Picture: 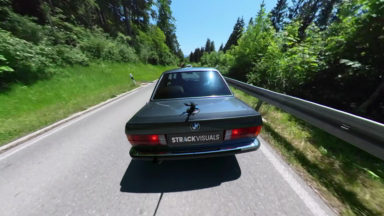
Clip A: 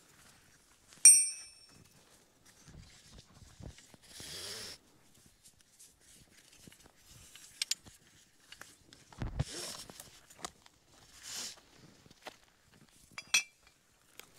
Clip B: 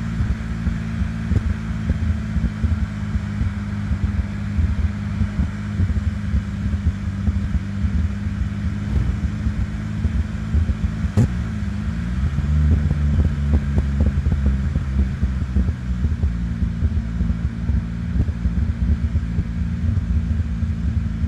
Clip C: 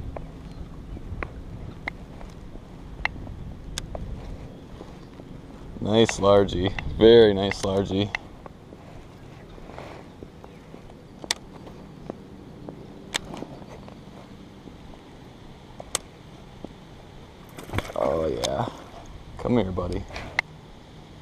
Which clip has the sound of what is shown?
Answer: B